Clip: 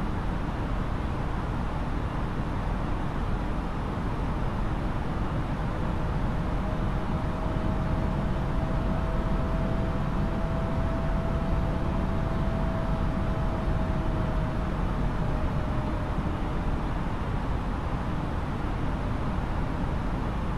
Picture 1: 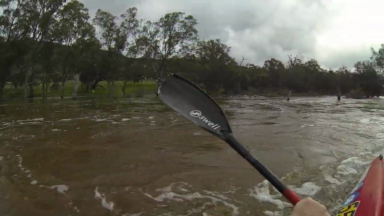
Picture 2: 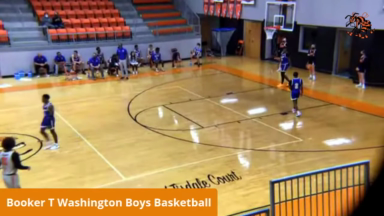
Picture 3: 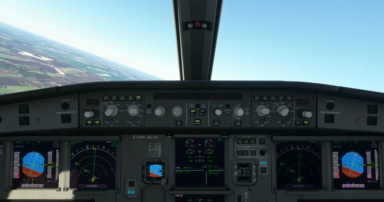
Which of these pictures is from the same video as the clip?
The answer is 3